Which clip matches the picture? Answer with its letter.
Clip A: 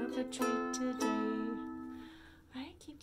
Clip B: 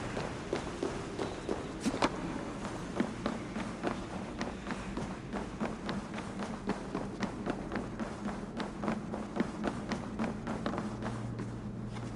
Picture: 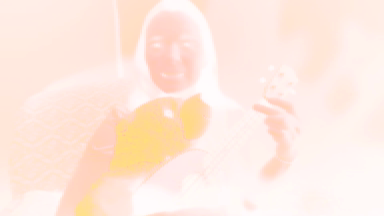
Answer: A